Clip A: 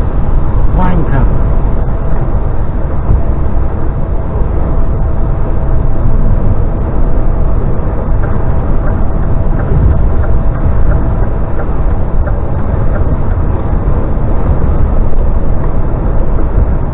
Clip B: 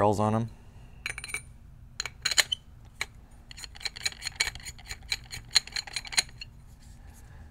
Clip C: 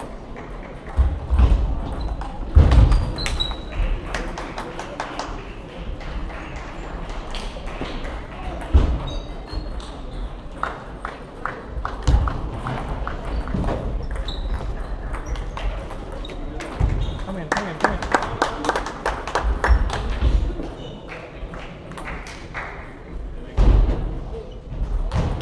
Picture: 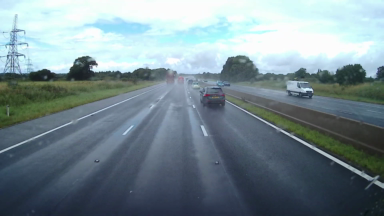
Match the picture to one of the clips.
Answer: A